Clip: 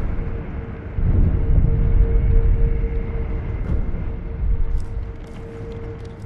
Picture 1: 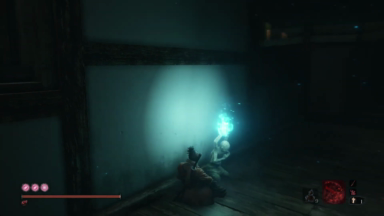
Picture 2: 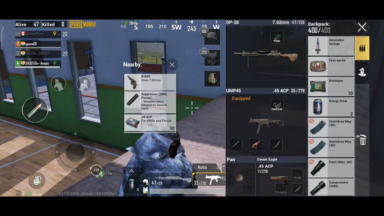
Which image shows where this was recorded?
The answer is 1